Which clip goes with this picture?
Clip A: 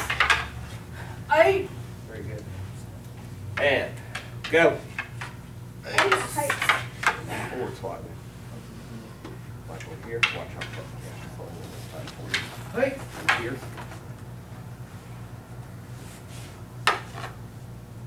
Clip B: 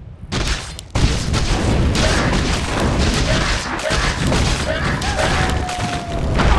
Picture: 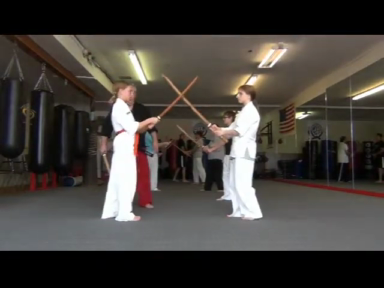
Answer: A